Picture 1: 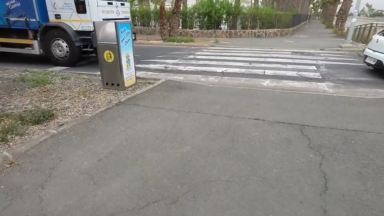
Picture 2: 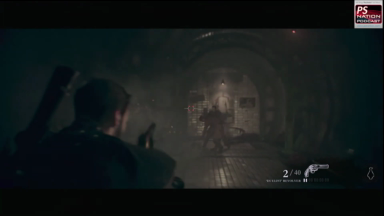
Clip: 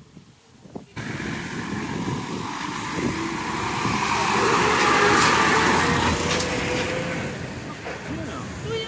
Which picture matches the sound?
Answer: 1